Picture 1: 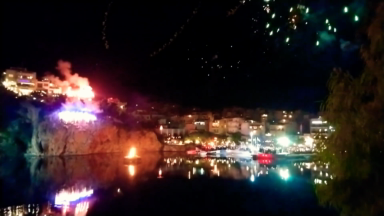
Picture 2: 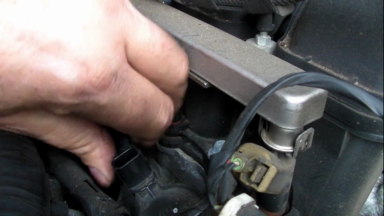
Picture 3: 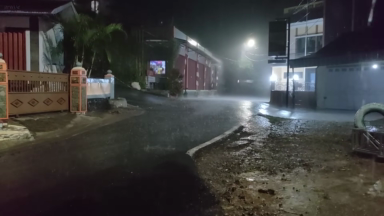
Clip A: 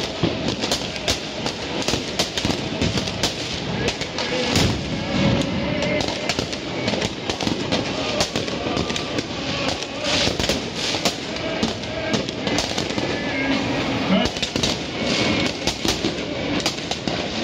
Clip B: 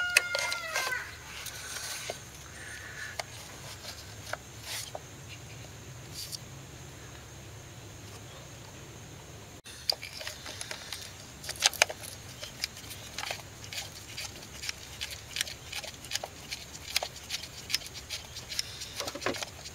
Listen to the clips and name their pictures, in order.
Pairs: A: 1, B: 2